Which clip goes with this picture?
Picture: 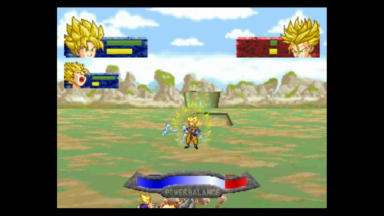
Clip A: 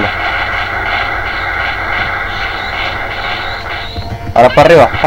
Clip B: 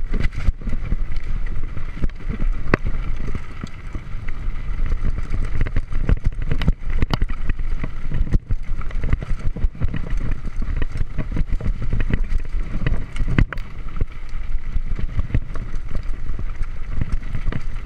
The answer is A